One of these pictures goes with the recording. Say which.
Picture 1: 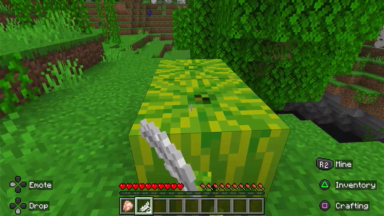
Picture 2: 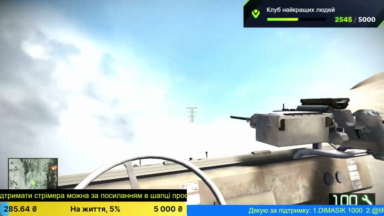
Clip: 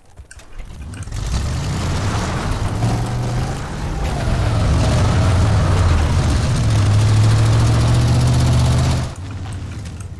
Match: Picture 2